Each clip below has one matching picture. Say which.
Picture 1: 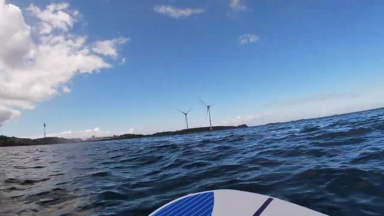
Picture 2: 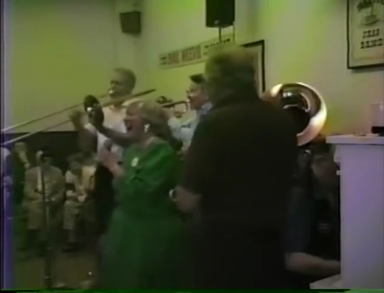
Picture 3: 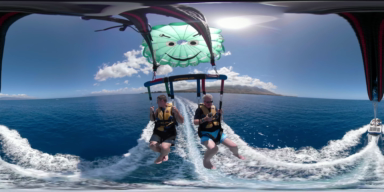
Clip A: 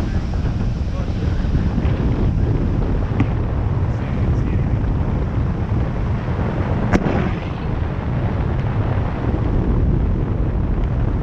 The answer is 3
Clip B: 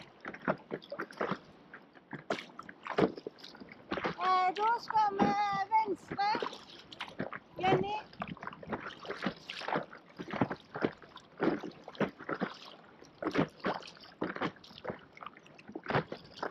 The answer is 1